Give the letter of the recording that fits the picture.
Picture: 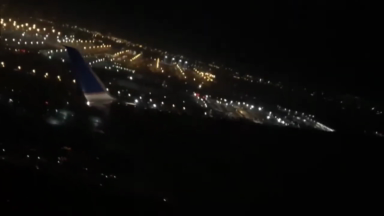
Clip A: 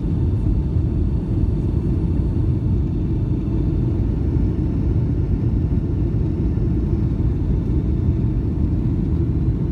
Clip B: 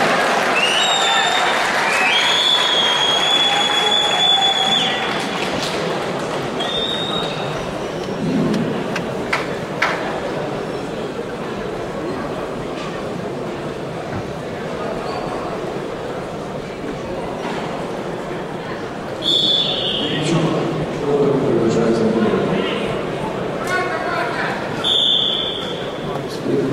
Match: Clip A